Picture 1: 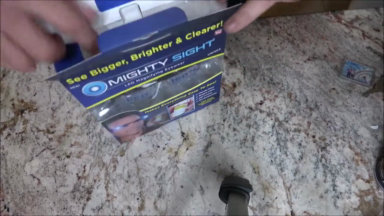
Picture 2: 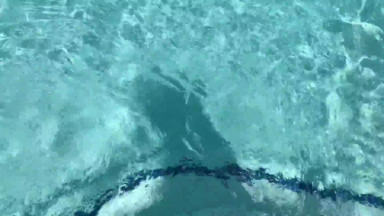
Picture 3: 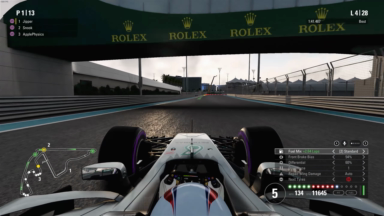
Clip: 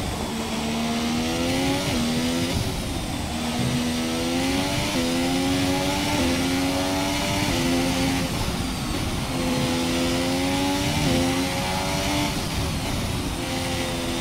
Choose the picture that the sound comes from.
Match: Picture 3